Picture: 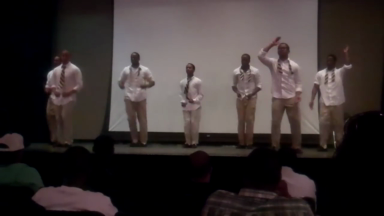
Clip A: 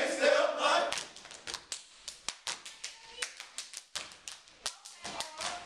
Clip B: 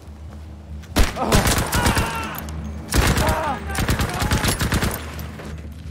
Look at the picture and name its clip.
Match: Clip A